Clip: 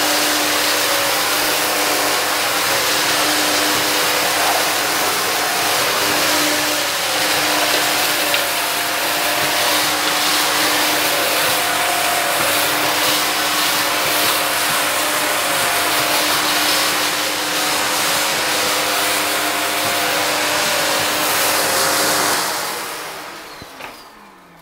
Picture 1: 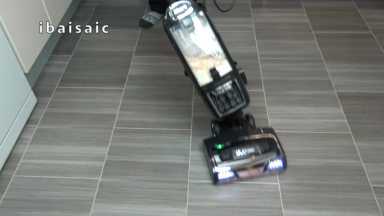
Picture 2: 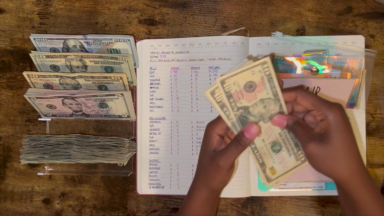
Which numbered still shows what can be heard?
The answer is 1